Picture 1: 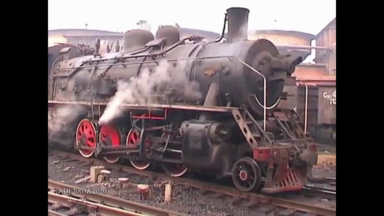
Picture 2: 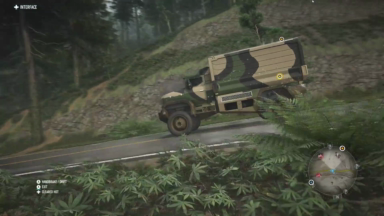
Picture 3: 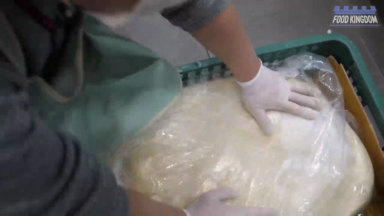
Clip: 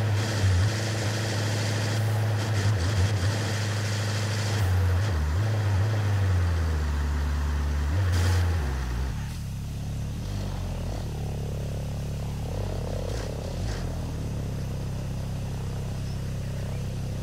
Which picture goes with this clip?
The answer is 2